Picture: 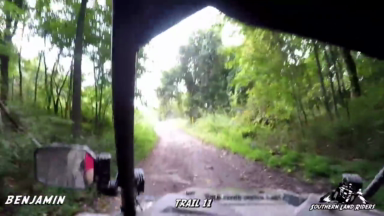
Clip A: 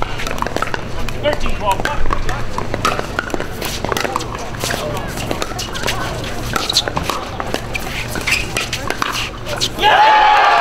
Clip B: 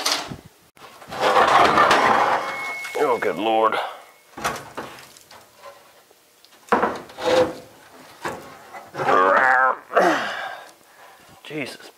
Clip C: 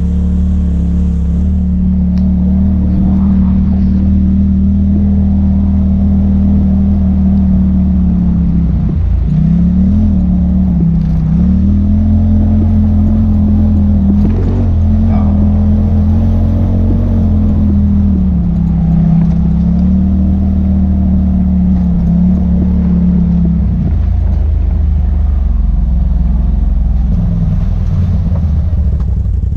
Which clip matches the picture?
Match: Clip C